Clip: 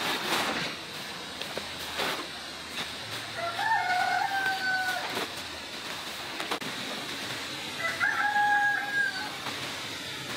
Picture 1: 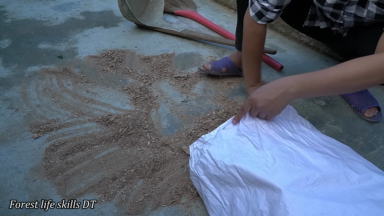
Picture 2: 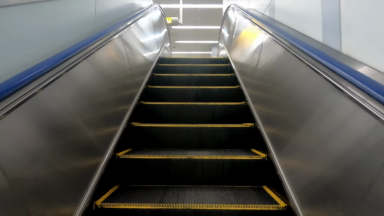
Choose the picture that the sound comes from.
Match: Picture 1